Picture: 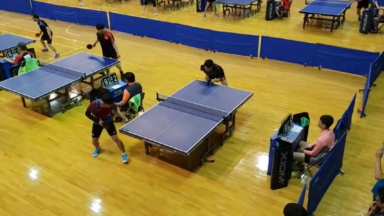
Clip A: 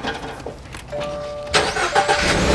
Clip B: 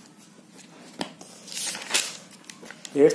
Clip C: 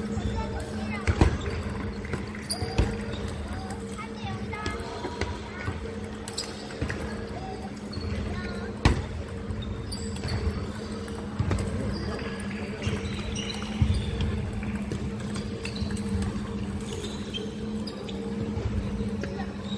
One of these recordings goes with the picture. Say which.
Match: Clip C